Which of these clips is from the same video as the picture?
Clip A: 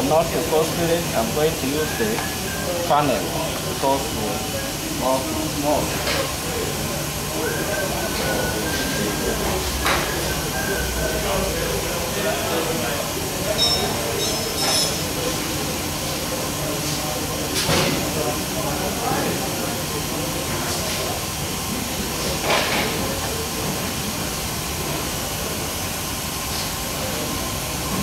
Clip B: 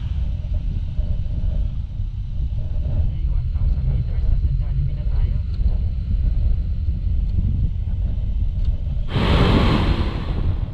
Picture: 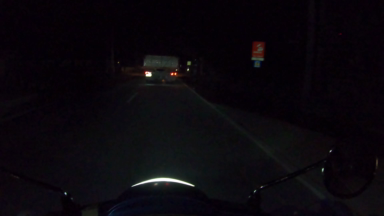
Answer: B